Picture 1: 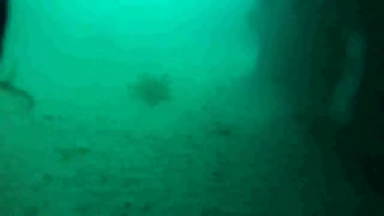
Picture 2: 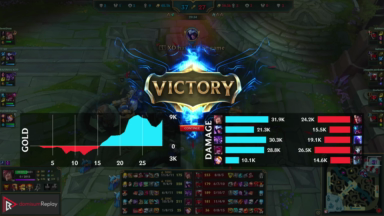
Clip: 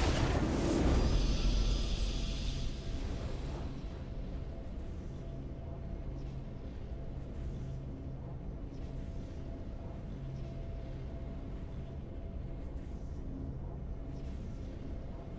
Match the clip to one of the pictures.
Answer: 2